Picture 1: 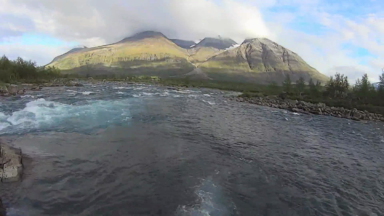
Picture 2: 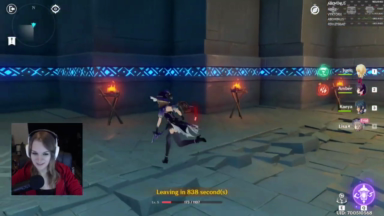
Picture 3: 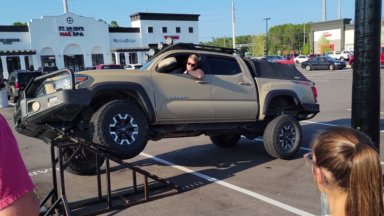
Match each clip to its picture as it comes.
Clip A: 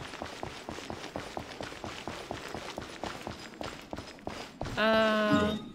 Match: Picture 2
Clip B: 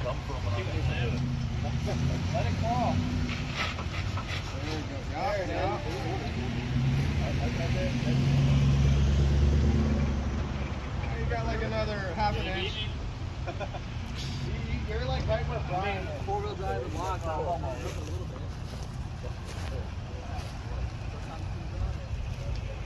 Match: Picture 3